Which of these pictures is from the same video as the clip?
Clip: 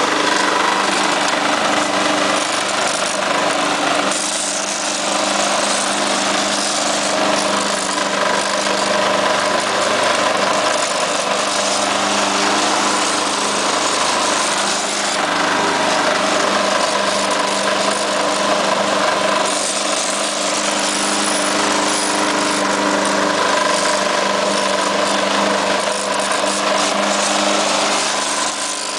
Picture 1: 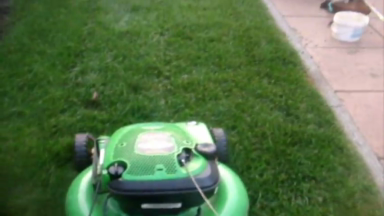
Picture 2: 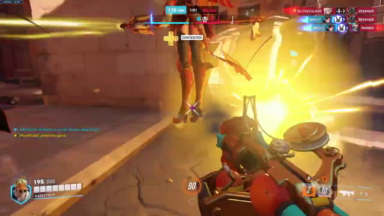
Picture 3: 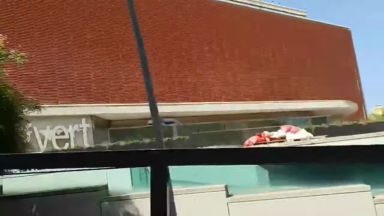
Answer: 1